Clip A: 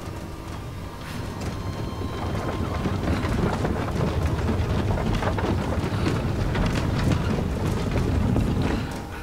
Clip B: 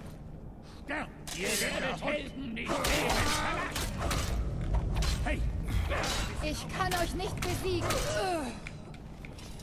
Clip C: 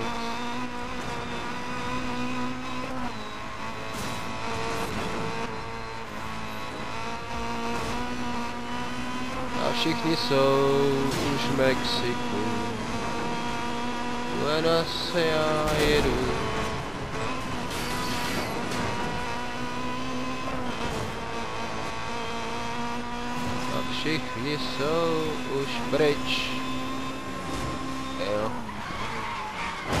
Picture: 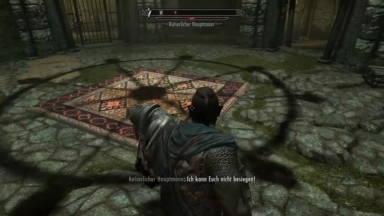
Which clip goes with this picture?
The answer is B